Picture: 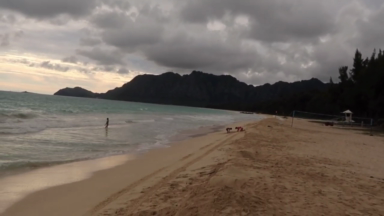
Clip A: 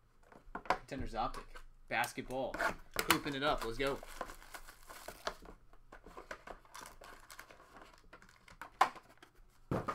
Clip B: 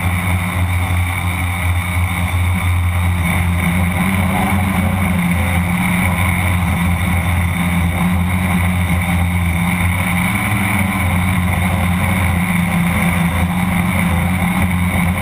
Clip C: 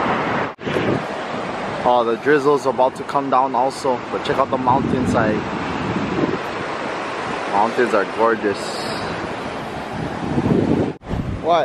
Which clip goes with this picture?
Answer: C